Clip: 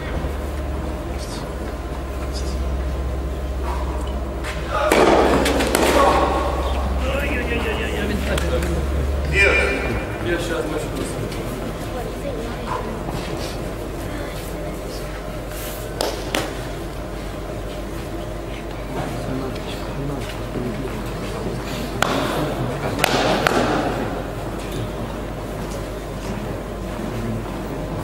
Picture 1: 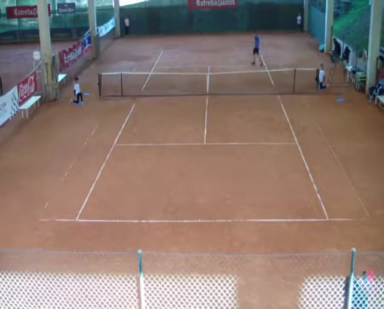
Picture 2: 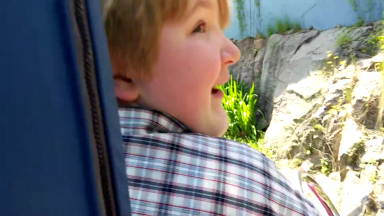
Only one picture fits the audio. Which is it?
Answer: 1